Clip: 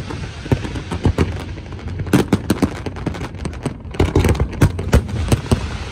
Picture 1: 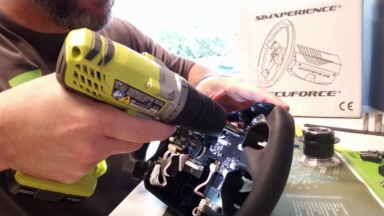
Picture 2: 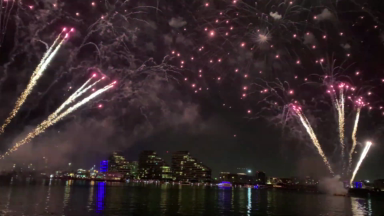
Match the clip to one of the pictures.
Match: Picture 2